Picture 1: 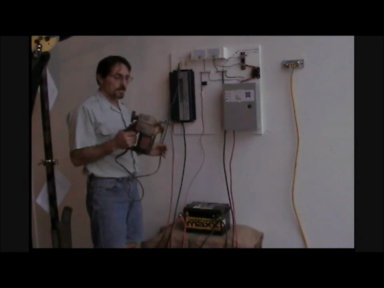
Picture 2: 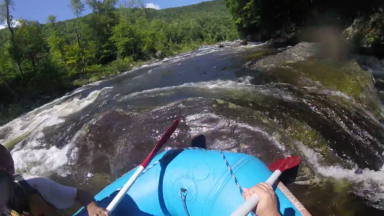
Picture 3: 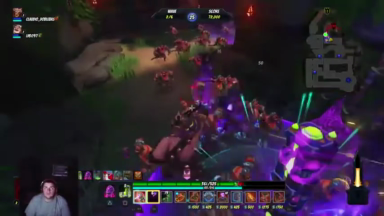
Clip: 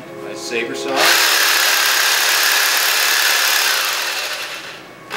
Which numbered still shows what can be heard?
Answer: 1